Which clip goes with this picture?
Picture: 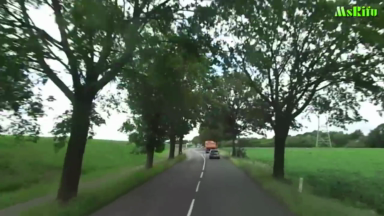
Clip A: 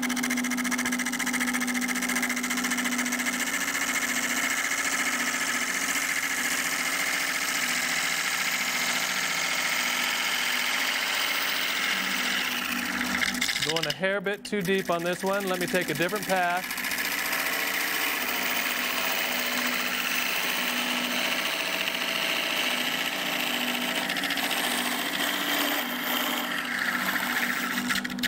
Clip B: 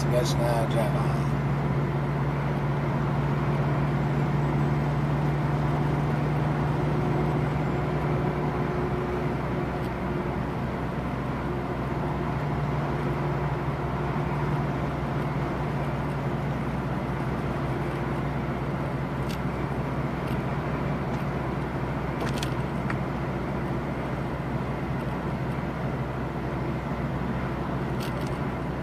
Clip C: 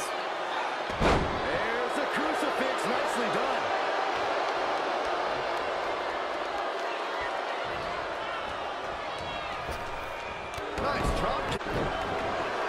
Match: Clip B